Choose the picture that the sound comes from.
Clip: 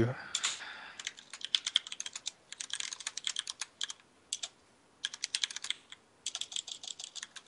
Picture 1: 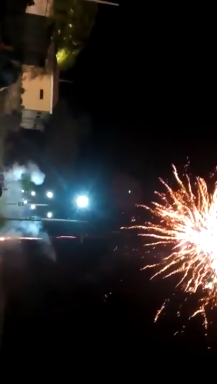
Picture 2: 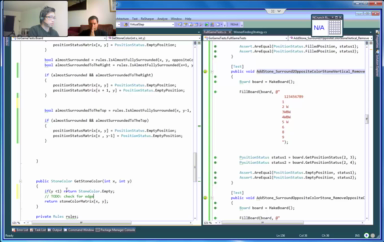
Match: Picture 2